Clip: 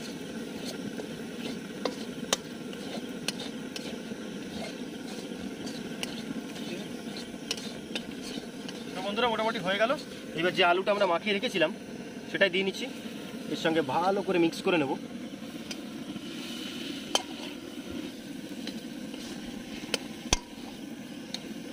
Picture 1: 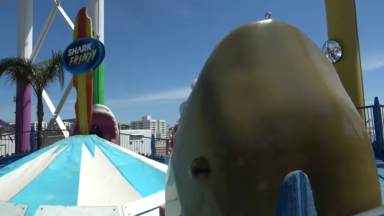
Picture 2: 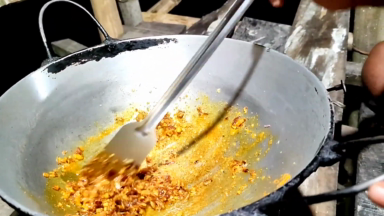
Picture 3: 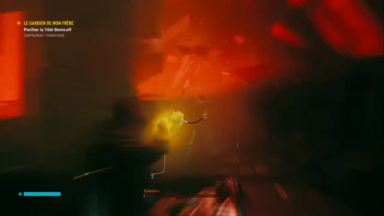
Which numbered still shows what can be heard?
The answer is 2